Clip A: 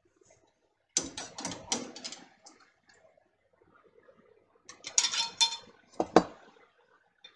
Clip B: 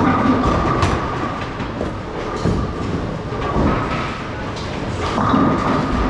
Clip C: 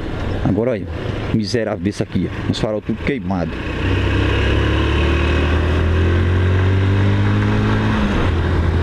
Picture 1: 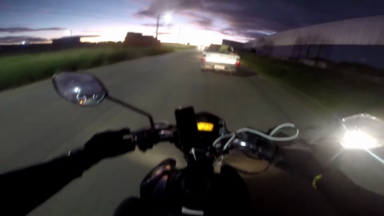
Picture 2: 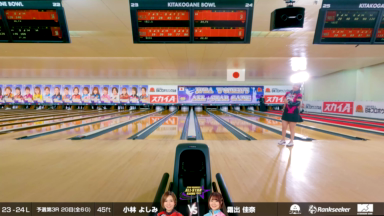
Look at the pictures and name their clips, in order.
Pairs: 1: C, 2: B